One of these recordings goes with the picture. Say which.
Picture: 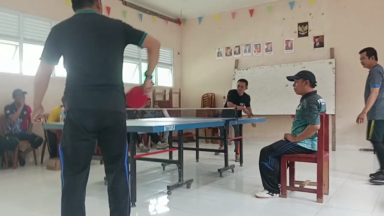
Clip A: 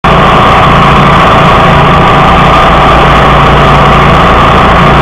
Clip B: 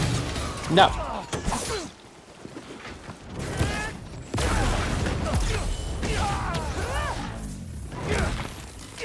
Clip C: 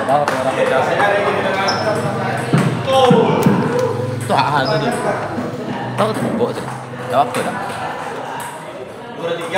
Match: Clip C